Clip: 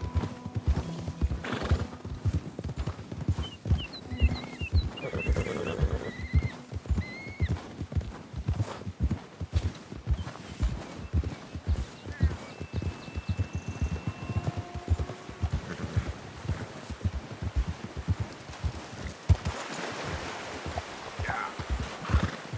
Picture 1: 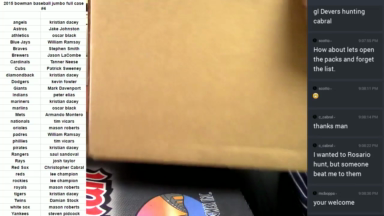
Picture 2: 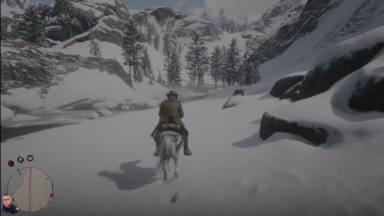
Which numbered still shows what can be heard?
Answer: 2